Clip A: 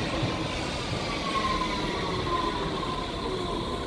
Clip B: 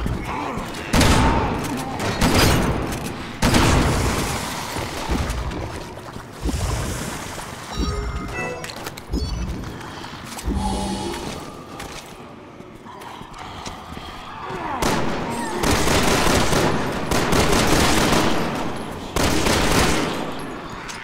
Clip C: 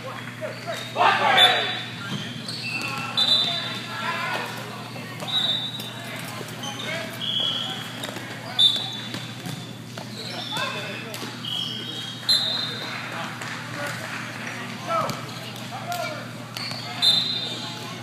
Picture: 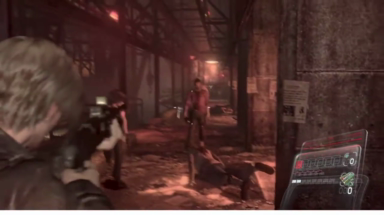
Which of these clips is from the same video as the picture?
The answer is B